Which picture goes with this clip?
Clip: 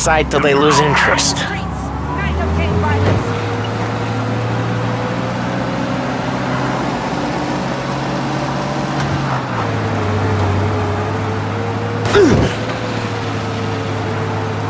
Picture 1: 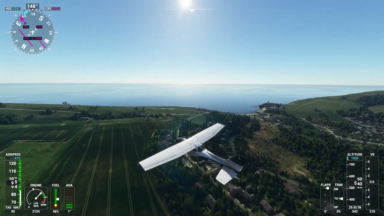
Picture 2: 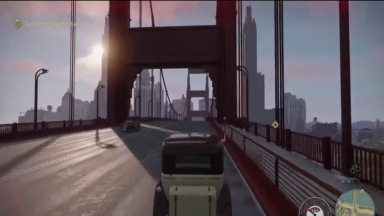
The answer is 2